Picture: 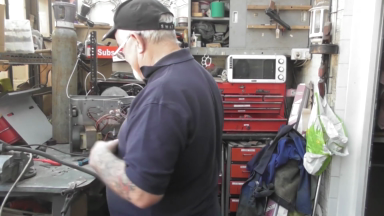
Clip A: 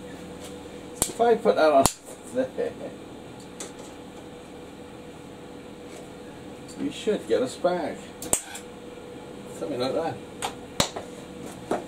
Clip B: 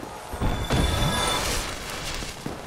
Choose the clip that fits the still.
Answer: A